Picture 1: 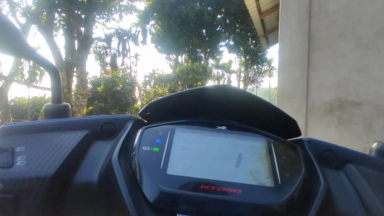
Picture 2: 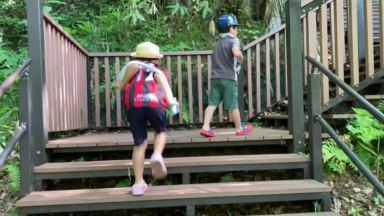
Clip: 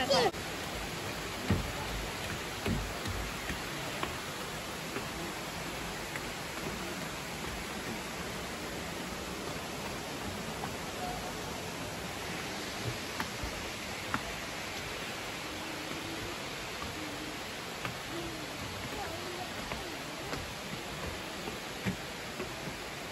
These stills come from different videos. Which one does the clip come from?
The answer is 2